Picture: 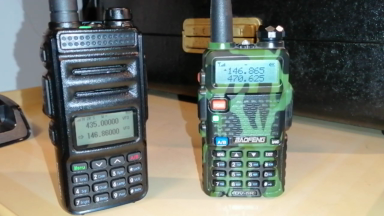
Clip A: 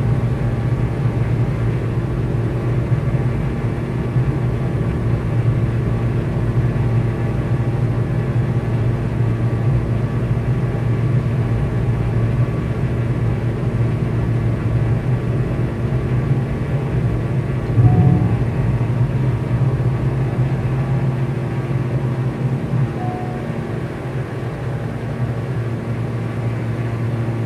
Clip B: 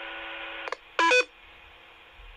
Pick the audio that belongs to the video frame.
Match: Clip B